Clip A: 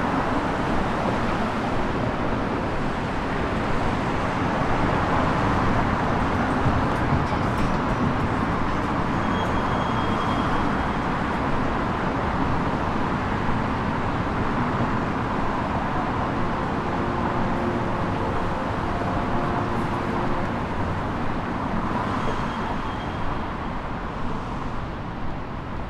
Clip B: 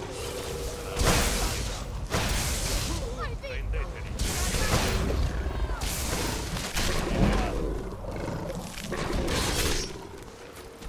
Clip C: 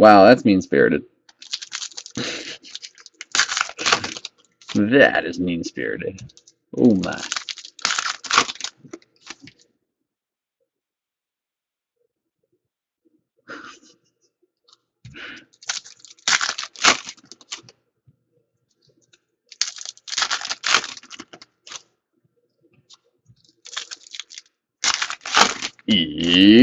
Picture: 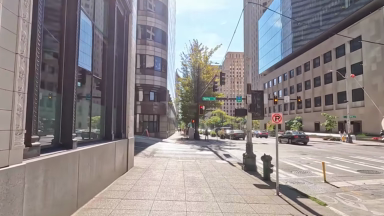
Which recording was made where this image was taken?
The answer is A